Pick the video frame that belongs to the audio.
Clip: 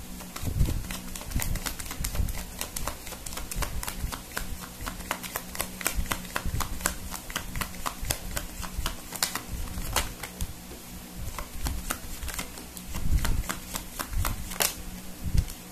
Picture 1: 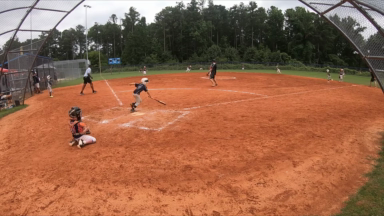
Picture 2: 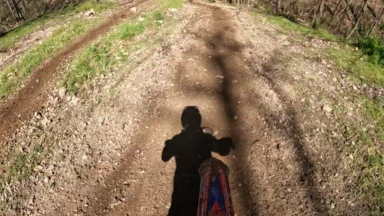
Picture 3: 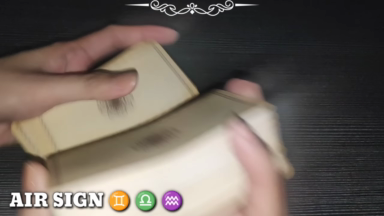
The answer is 3